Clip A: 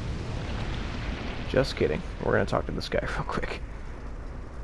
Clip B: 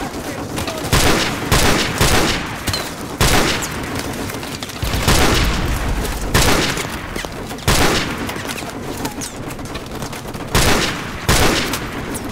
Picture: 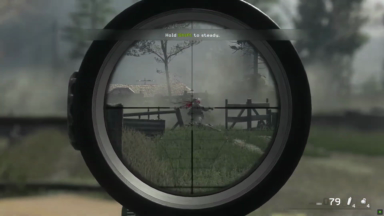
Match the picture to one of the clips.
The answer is B